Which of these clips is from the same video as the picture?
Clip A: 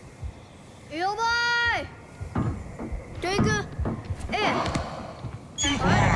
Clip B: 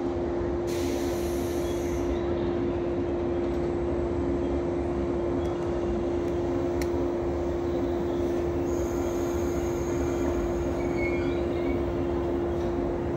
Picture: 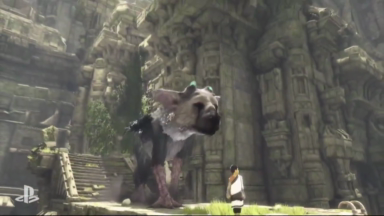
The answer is A